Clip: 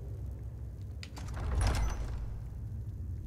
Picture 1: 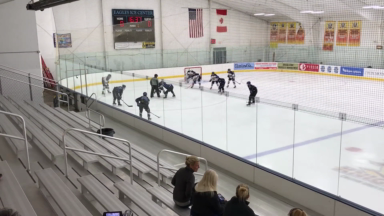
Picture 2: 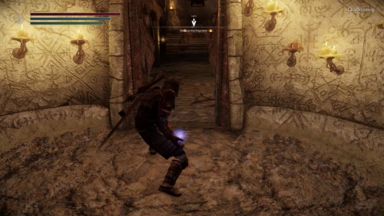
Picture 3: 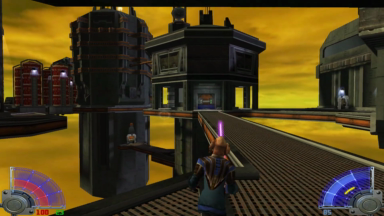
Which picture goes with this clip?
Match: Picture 2